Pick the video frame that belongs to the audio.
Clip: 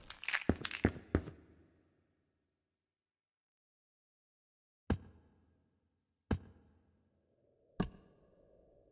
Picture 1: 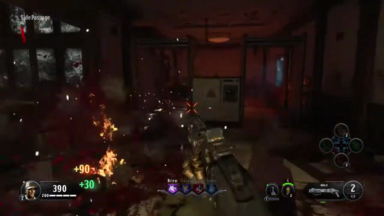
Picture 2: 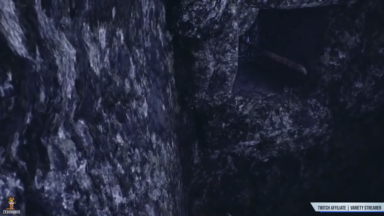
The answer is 2